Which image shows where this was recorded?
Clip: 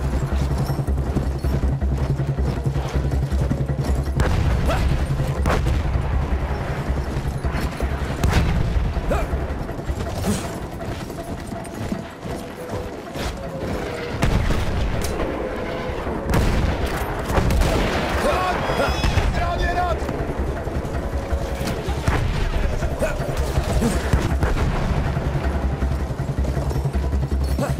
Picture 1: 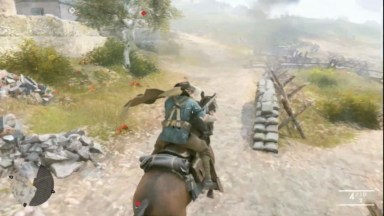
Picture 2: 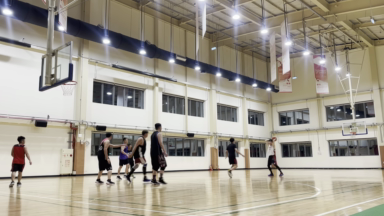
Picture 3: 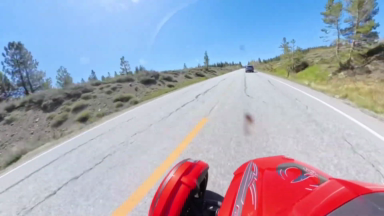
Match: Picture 1